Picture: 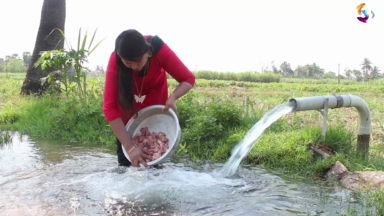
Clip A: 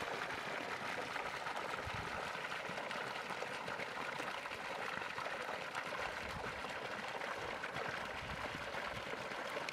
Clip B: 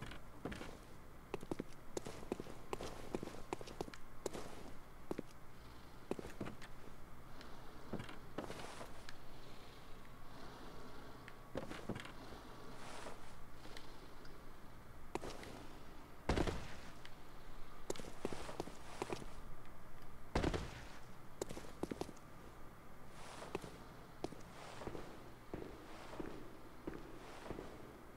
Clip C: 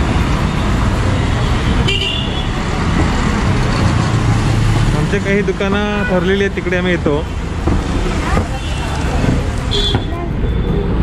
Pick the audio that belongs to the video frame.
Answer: A